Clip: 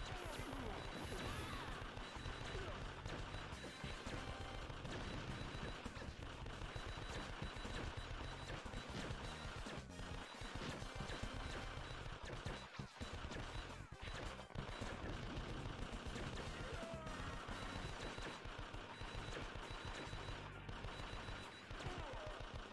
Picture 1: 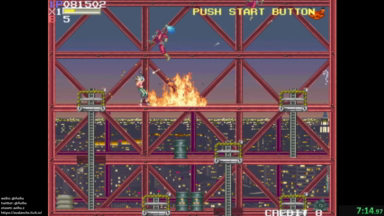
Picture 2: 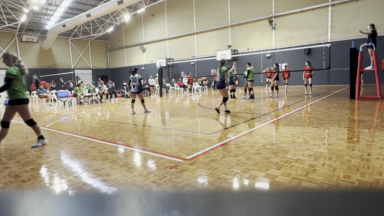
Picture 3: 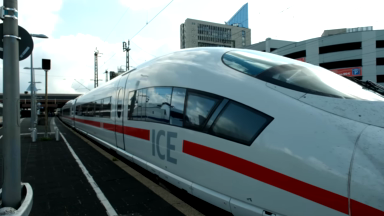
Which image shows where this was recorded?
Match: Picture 1